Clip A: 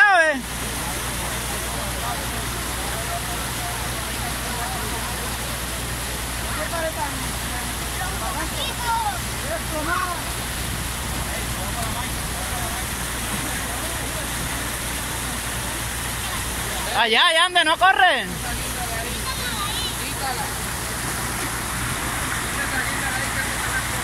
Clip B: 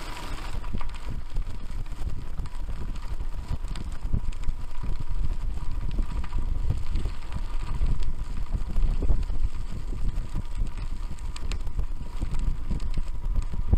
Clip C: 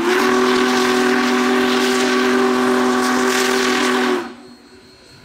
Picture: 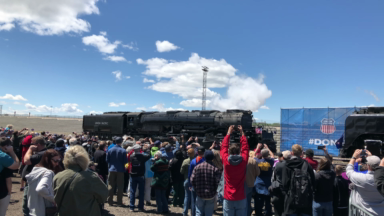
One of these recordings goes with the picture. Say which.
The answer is C